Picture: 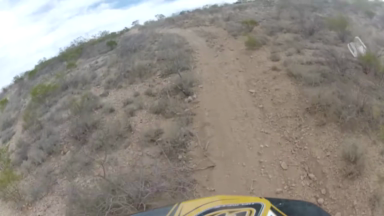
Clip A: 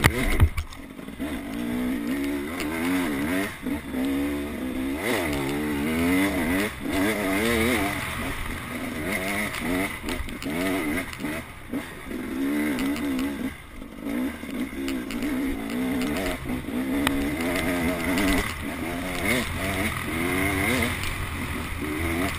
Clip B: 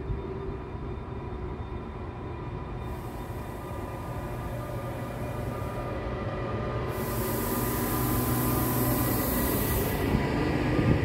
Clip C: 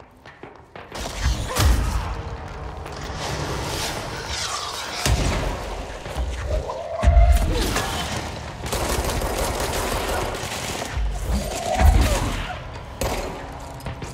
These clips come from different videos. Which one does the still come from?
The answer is A